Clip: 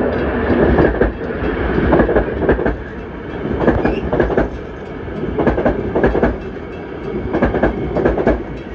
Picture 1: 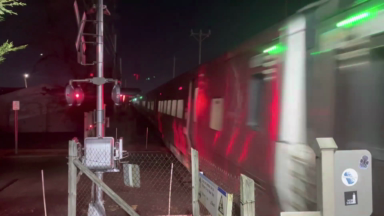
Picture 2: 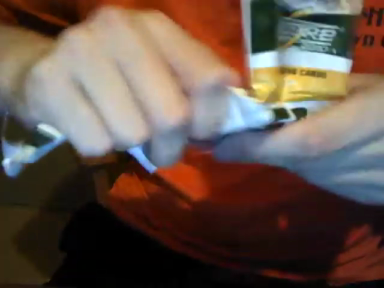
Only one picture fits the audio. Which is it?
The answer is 1